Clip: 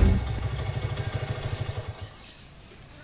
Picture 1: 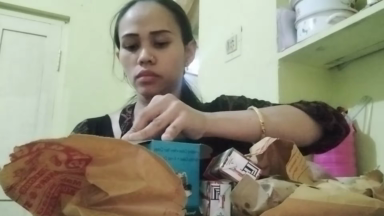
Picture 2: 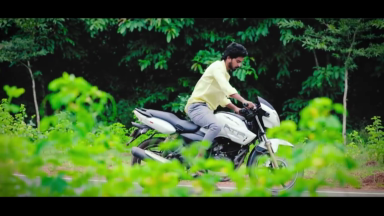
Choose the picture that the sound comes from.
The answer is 2